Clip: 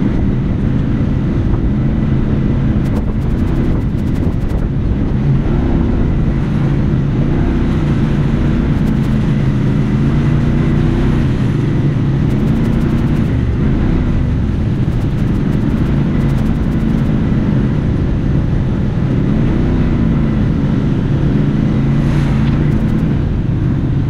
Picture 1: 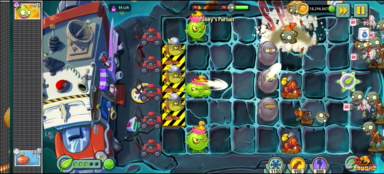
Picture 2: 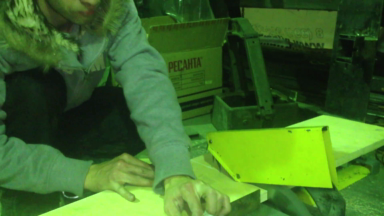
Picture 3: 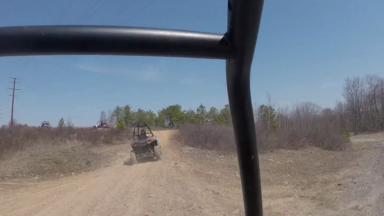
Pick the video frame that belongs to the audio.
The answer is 3